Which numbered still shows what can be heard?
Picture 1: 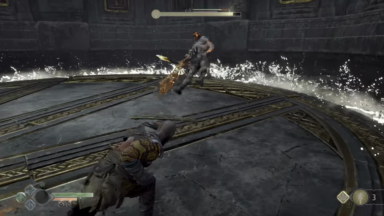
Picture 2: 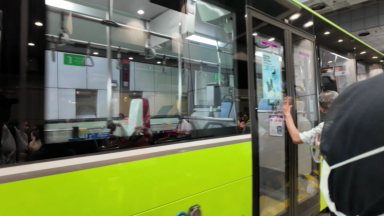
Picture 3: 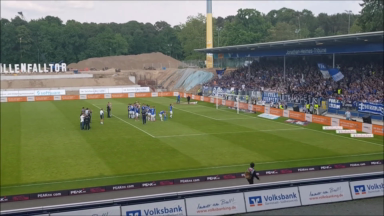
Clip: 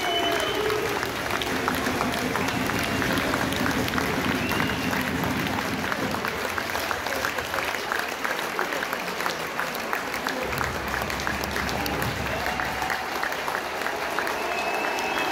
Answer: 3